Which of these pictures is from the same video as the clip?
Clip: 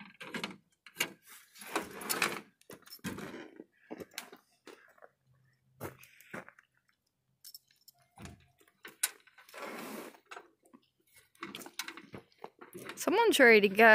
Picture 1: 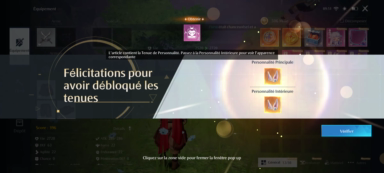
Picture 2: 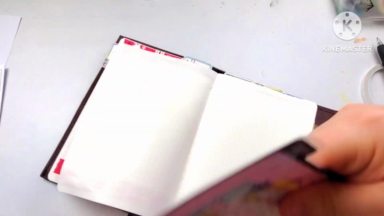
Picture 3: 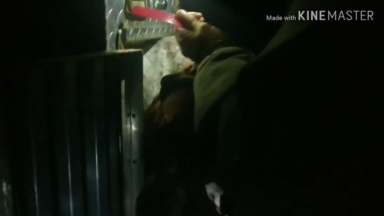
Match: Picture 3